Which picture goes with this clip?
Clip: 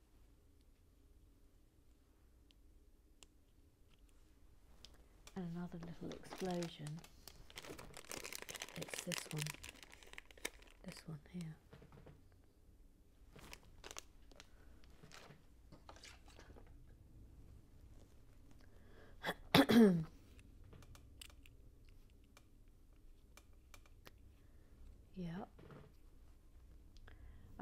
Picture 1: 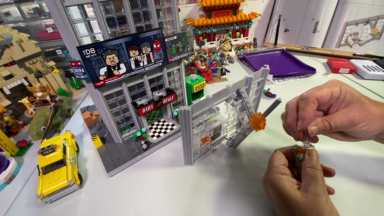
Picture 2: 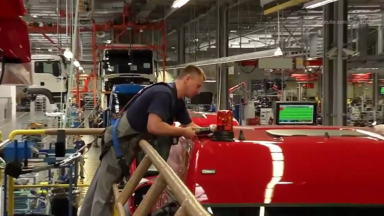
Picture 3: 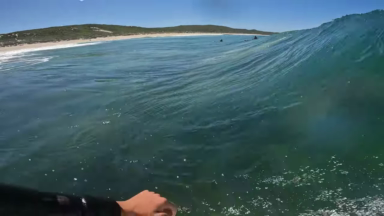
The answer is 1